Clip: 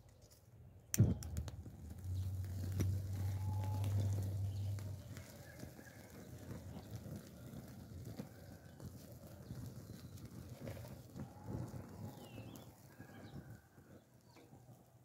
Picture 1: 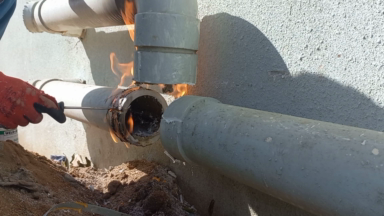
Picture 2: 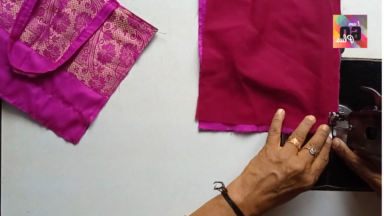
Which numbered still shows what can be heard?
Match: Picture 1